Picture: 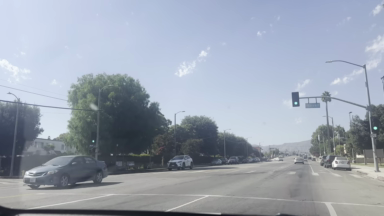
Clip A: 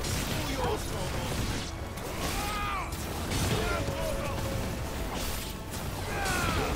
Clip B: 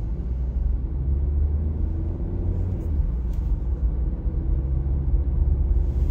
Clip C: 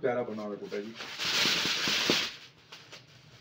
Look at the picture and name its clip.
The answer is B